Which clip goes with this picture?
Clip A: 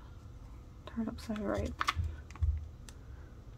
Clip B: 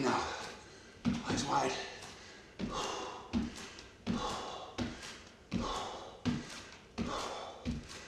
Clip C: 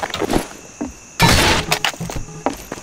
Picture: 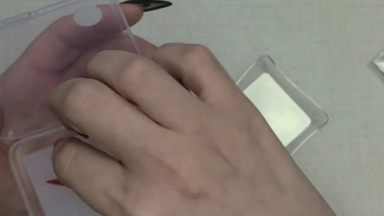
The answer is A